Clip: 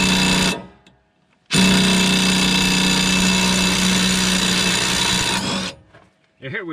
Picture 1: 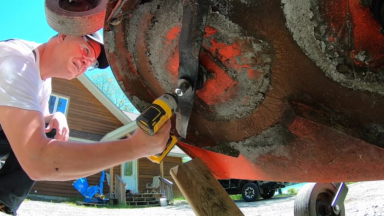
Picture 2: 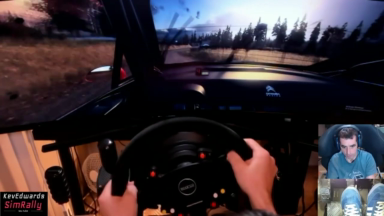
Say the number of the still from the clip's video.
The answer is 1